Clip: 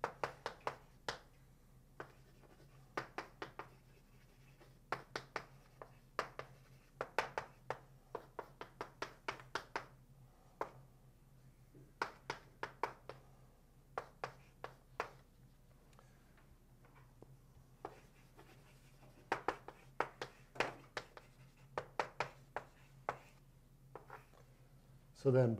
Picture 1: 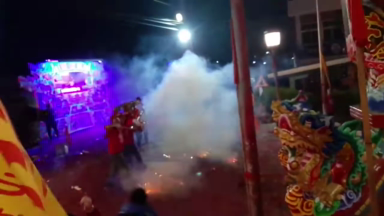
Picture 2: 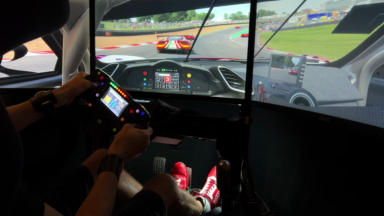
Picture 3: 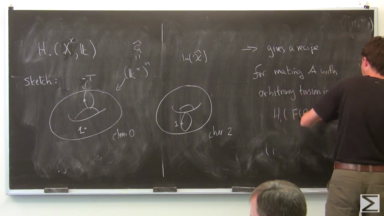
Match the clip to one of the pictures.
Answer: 3